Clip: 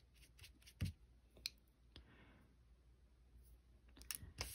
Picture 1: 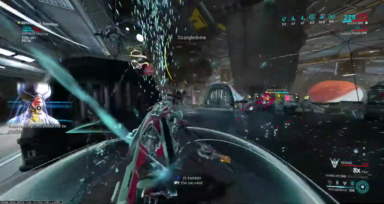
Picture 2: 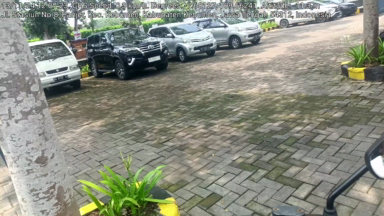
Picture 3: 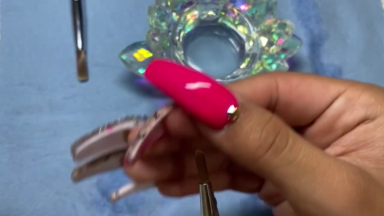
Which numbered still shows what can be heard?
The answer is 3